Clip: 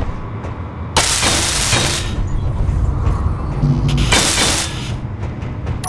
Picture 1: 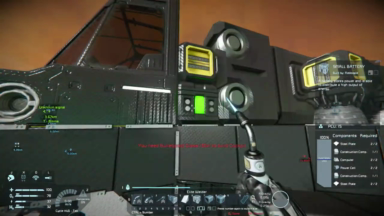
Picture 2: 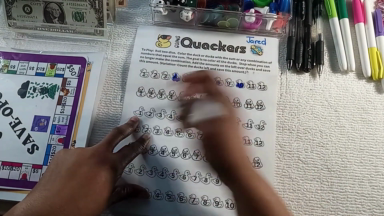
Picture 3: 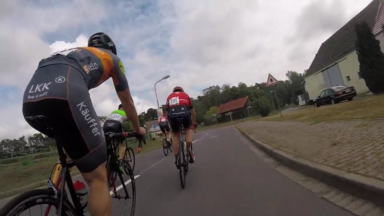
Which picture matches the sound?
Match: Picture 1